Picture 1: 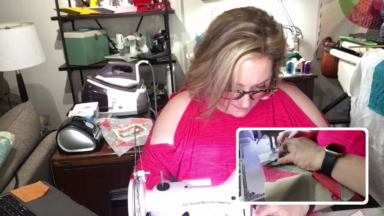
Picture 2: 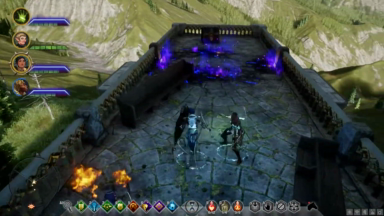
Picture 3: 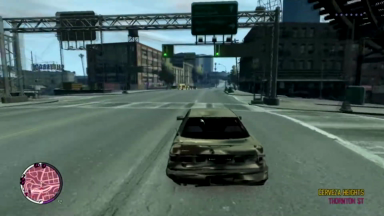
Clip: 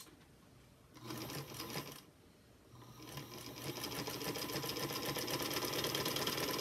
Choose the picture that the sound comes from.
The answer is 1